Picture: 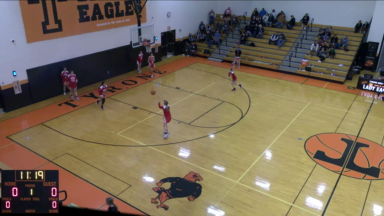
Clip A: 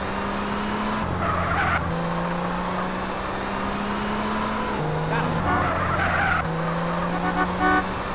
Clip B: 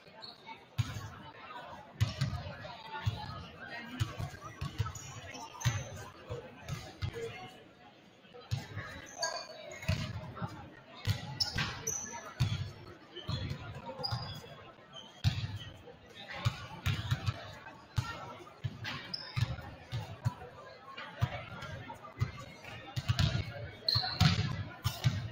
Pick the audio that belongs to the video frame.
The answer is B